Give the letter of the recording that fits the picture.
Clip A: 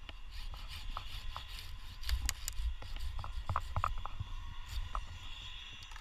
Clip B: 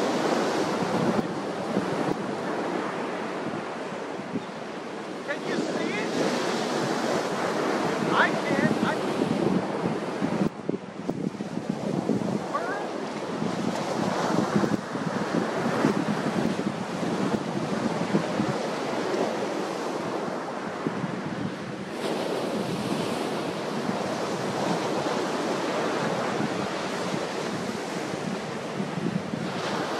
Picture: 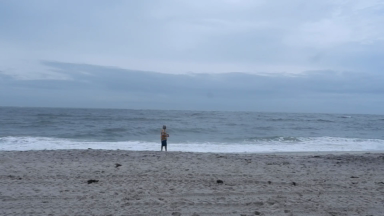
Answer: B